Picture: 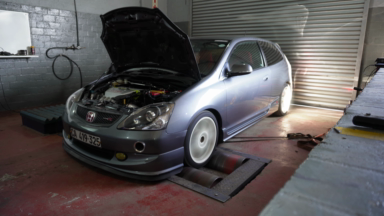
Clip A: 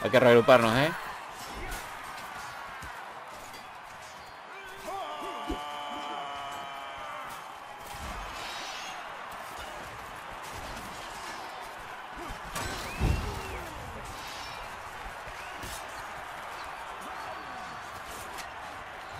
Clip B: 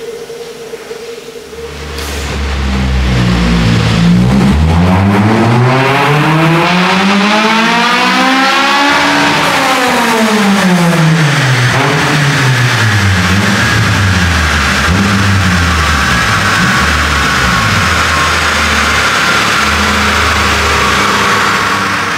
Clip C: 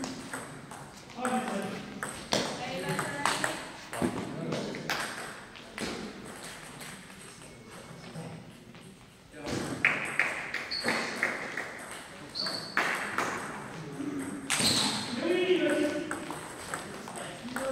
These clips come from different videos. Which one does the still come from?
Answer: B